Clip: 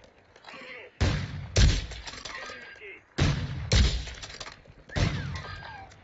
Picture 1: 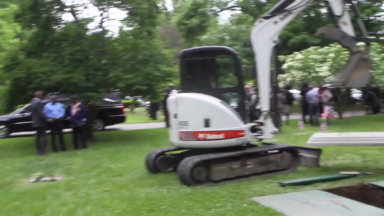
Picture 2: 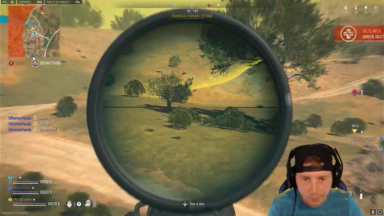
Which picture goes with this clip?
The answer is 2